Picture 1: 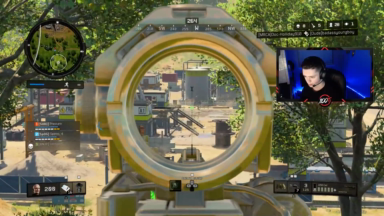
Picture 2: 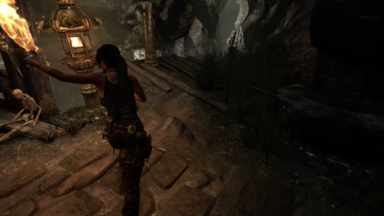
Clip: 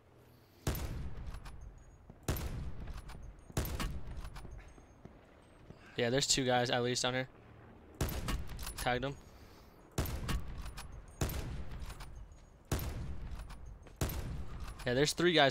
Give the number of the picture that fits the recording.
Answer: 1